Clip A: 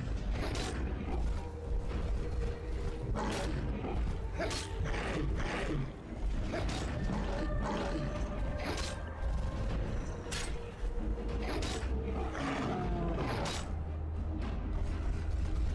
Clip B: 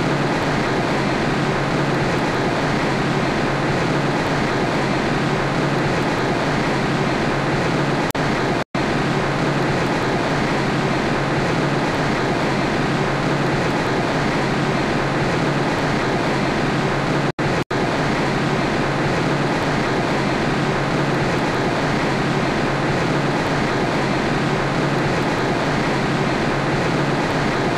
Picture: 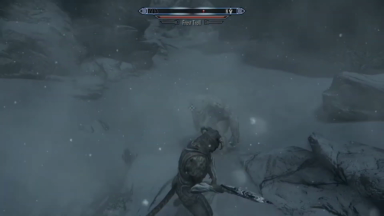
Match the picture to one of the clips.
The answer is A